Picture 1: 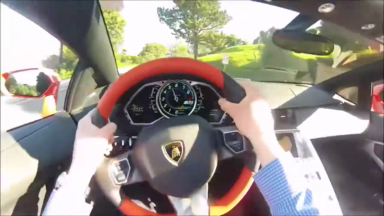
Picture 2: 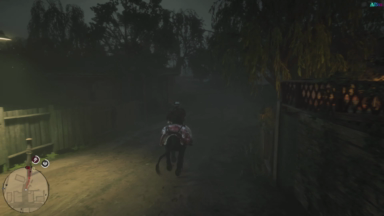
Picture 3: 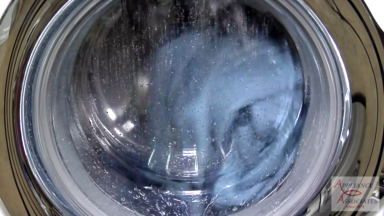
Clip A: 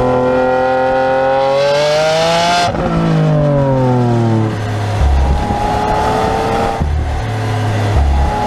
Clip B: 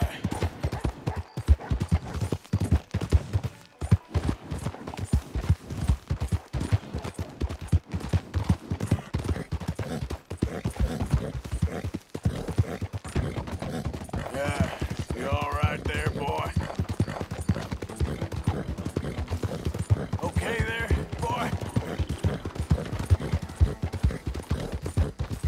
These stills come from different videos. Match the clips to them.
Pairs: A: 1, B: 2